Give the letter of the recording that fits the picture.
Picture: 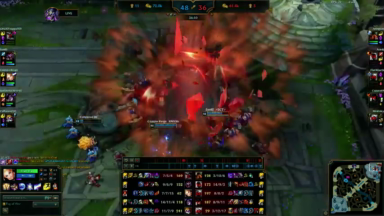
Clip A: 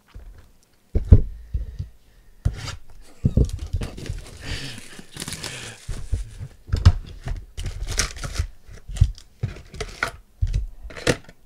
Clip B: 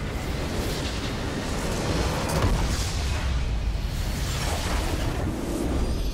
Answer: B